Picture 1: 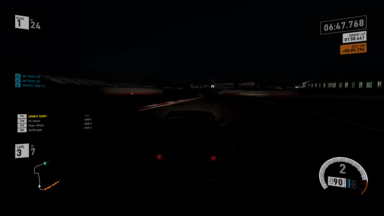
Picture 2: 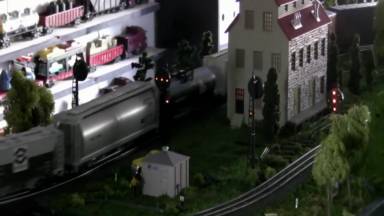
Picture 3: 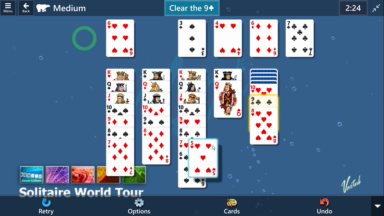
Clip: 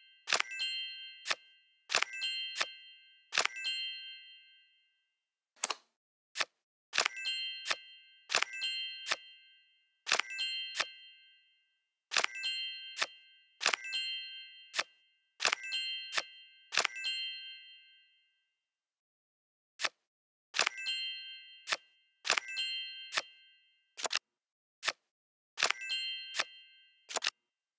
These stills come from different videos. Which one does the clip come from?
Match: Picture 3